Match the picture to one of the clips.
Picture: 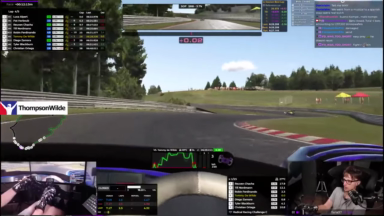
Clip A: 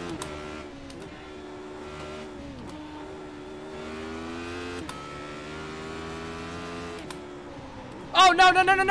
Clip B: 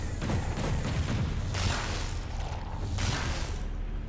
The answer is A